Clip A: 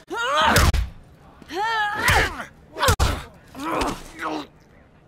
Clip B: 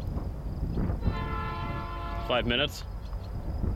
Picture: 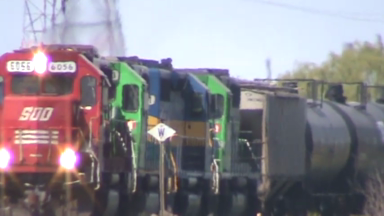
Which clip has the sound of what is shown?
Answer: B